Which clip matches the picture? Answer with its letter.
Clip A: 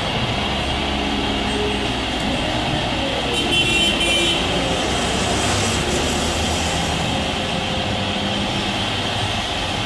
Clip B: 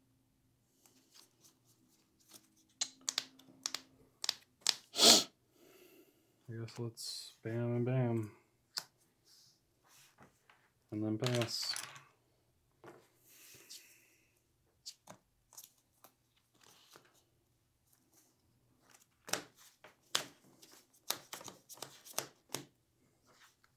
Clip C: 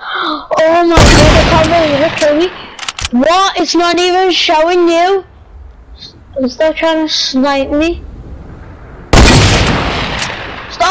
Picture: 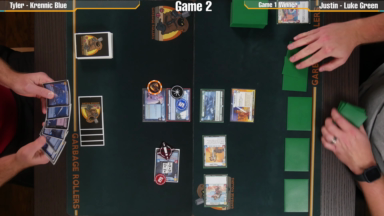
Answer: B